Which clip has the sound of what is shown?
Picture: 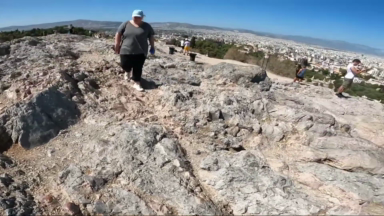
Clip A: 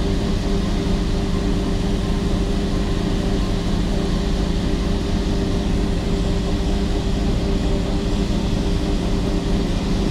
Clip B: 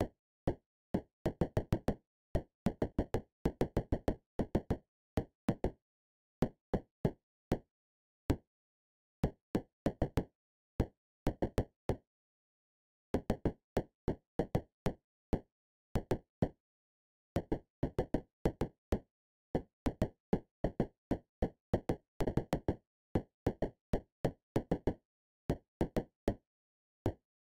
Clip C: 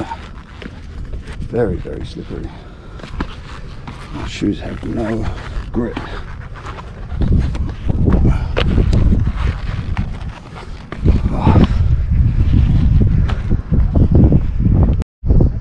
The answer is C